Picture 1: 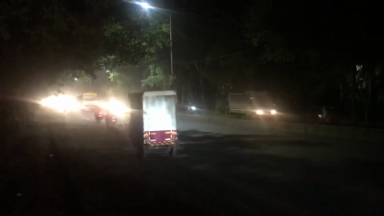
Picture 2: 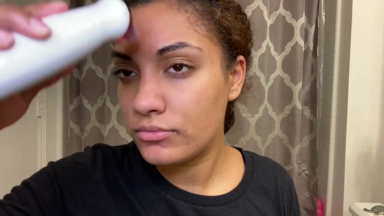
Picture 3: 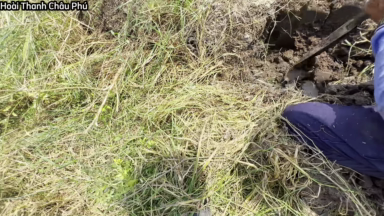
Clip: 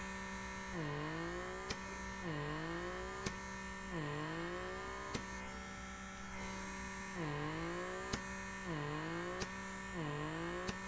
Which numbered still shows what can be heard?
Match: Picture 2